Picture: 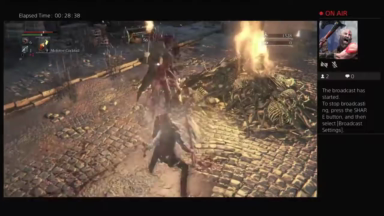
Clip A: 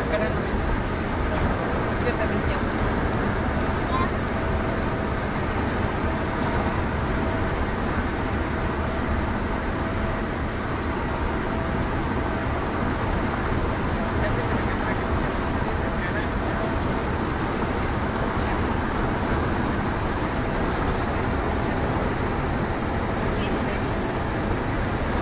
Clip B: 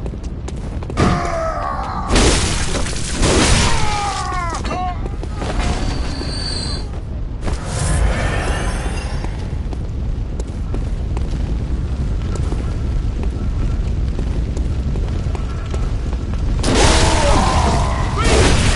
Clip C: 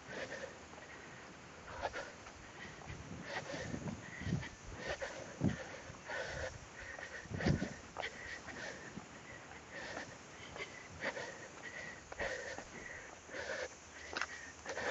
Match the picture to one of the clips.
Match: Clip B